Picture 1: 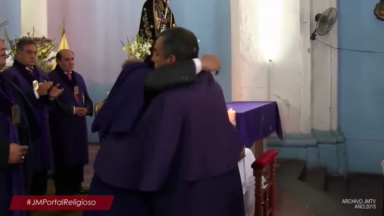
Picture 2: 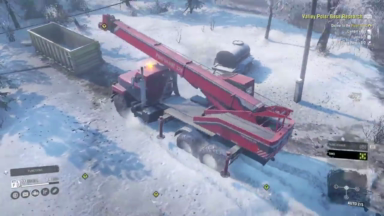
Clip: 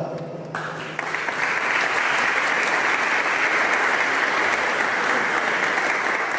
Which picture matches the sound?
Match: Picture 1